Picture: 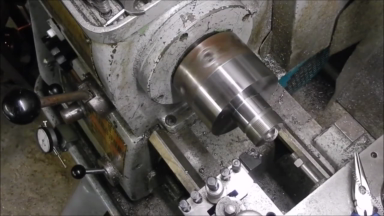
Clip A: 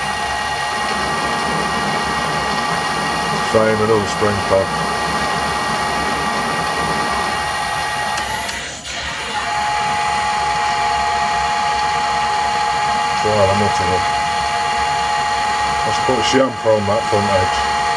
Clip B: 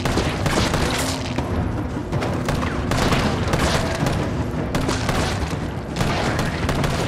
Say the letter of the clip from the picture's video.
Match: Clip A